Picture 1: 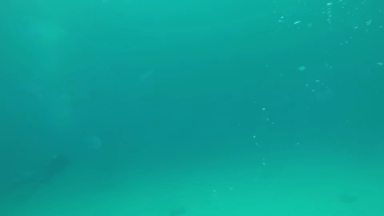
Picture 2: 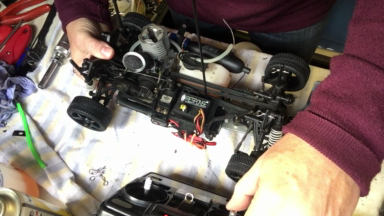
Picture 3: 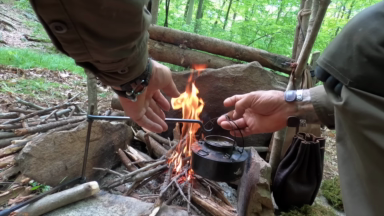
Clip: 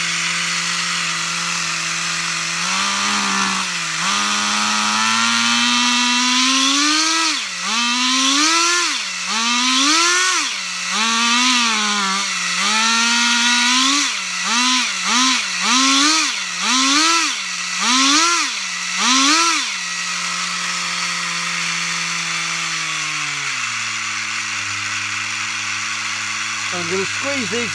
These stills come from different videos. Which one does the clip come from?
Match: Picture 2